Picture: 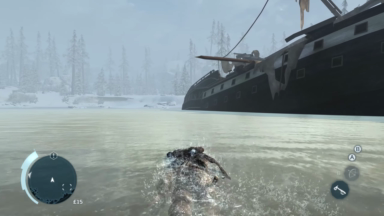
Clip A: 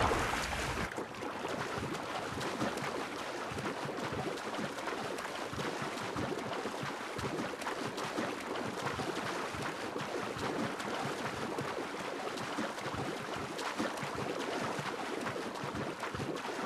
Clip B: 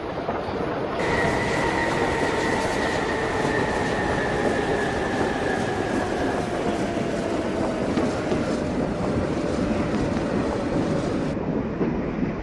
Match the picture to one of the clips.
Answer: A